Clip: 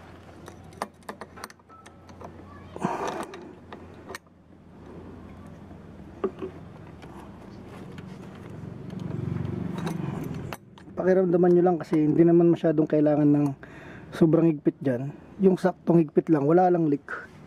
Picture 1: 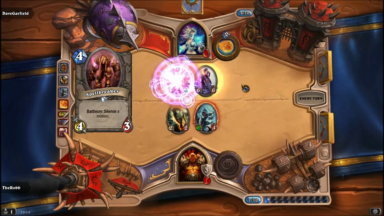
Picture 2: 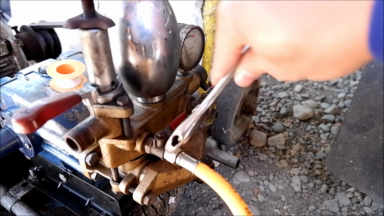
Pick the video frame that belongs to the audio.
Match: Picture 2